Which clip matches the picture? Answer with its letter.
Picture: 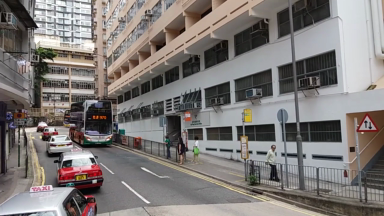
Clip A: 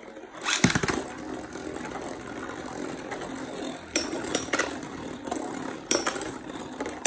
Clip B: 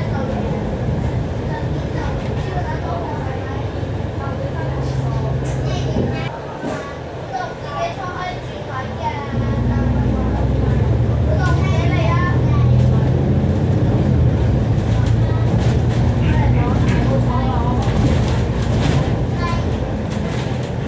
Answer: B